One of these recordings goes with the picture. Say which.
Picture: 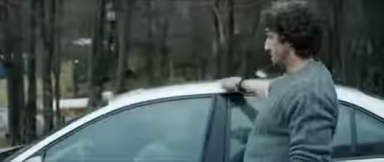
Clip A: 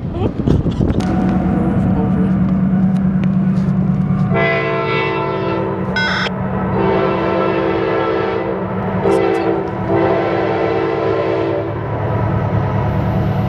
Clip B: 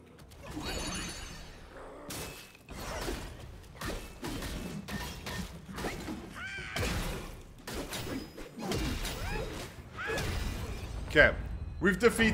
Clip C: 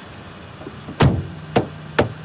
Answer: C